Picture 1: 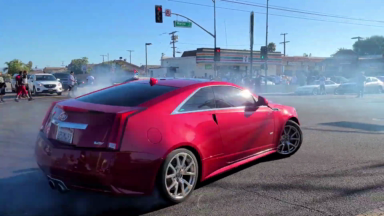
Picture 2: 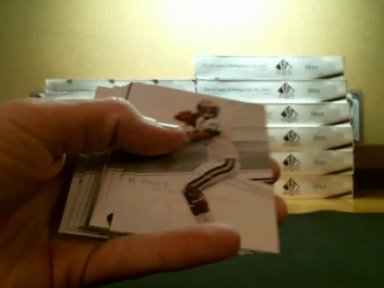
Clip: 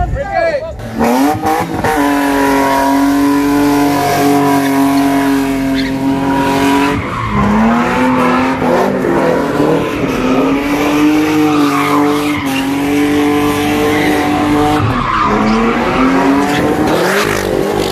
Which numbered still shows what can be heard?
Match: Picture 1